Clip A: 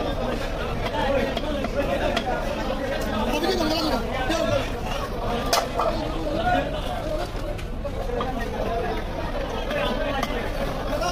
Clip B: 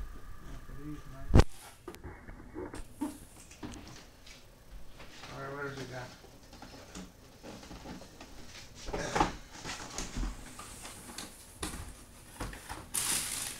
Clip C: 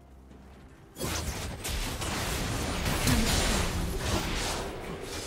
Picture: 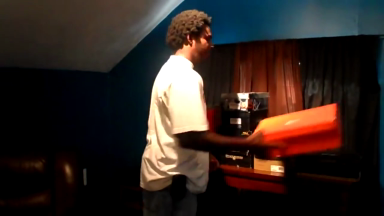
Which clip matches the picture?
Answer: B